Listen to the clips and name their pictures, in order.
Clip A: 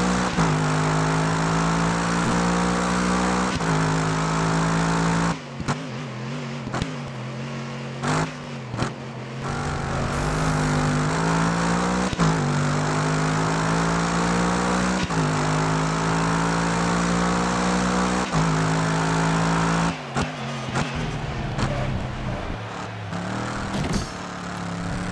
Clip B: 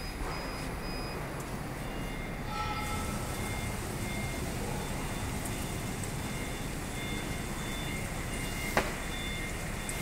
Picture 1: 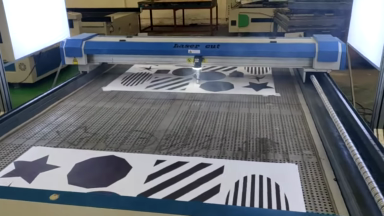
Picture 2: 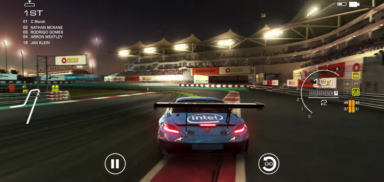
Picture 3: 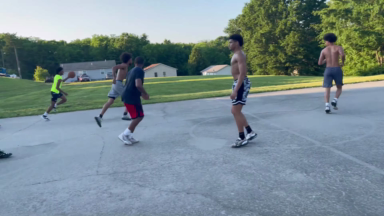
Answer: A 2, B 1